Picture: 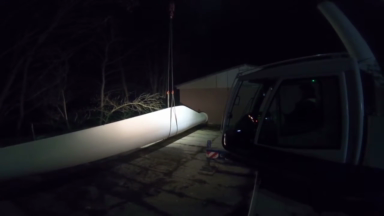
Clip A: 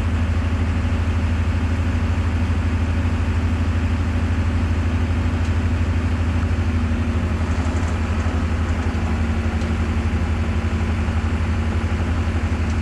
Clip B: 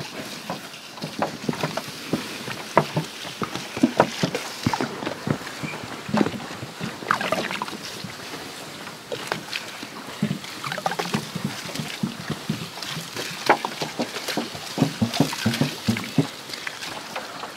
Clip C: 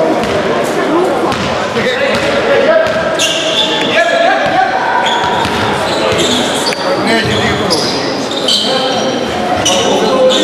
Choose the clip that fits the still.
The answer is A